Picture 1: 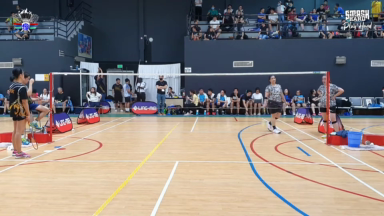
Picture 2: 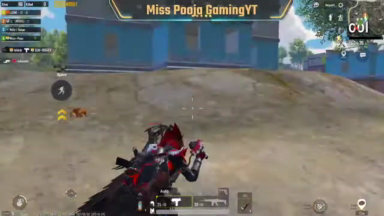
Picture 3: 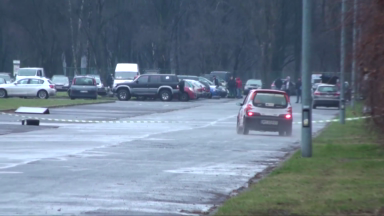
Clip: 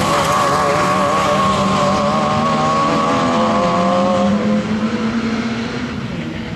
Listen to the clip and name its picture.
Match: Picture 3